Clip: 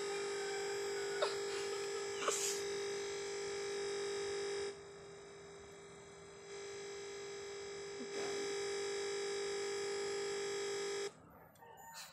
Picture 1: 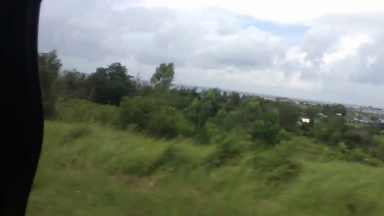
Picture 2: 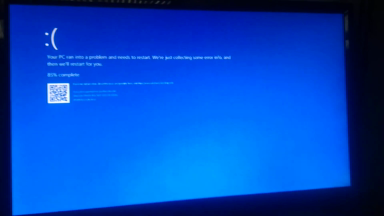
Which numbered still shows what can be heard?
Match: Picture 2